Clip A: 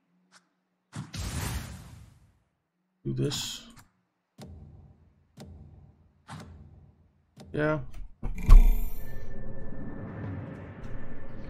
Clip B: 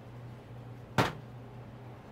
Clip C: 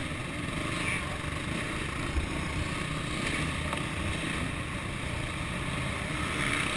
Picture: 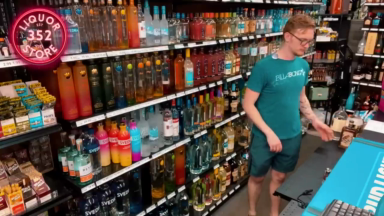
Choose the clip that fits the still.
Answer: B